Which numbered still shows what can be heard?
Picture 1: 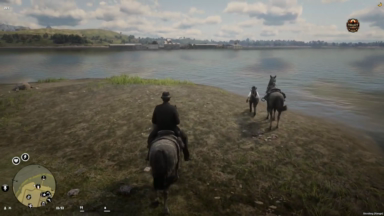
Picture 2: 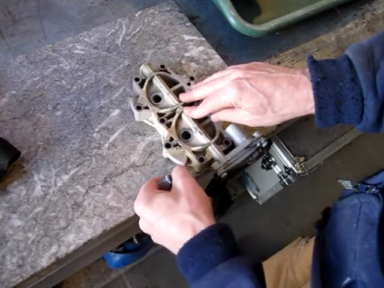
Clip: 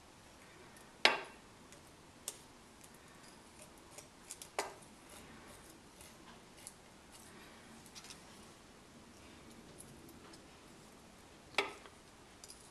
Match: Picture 2